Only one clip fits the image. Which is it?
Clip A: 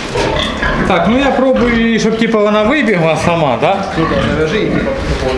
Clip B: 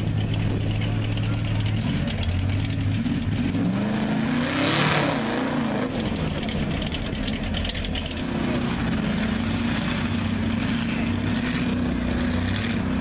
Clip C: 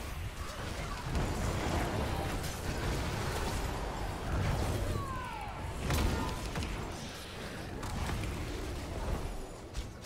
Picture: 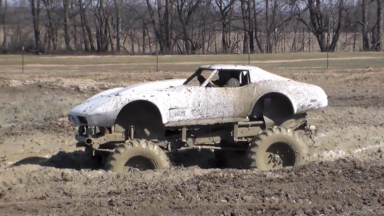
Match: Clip B